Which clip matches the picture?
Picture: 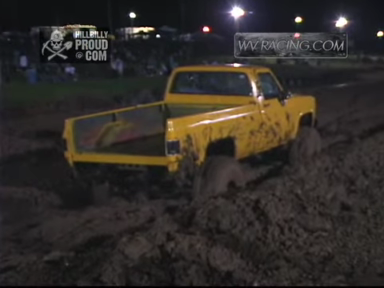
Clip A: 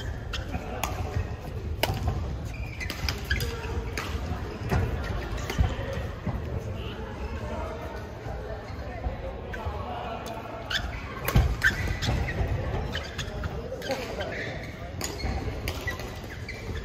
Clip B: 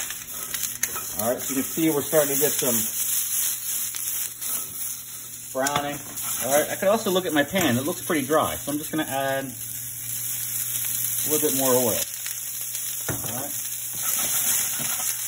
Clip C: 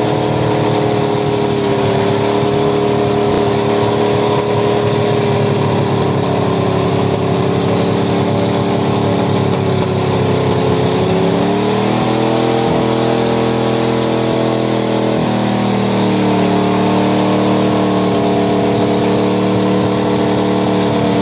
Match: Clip C